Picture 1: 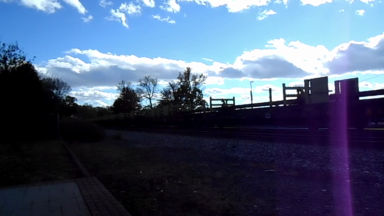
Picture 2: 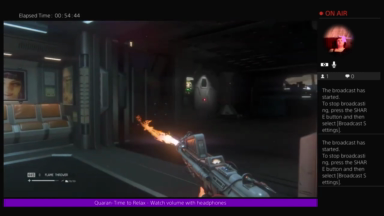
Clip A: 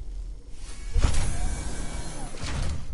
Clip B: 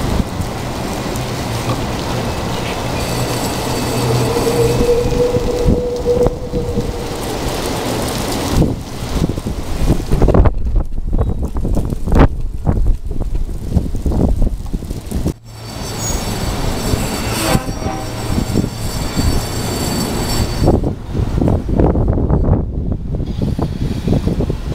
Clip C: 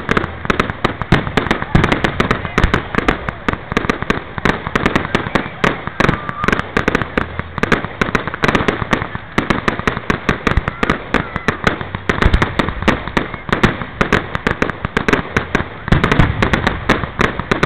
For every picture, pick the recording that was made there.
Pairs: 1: B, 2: A